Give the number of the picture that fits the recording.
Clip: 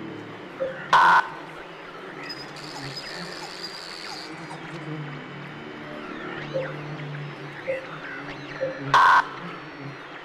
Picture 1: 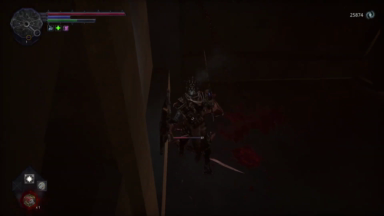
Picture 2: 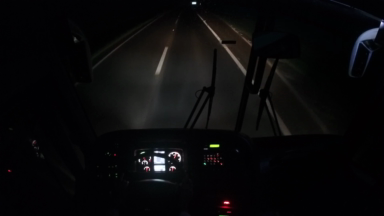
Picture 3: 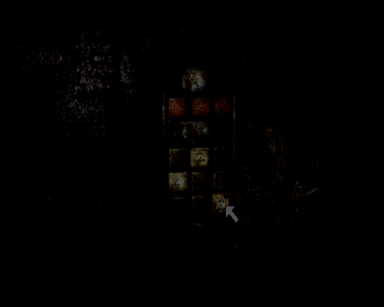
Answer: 3